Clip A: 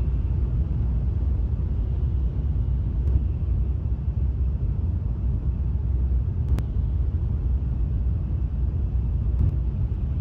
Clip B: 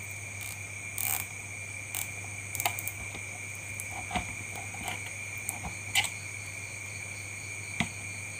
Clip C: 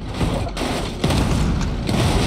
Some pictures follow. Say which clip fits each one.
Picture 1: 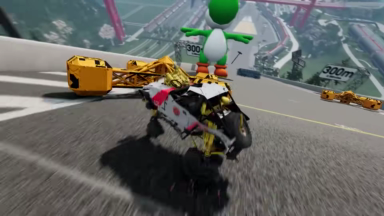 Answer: C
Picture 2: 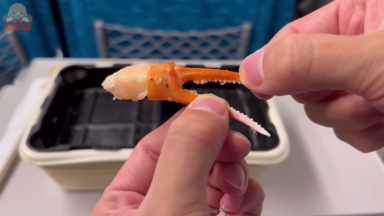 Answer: A